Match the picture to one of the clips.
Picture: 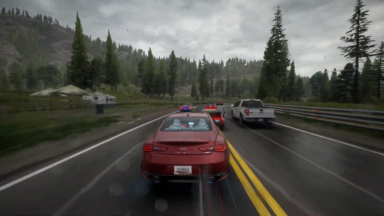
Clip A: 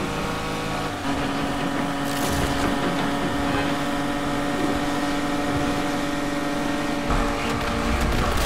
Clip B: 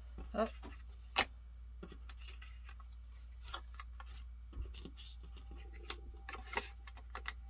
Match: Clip A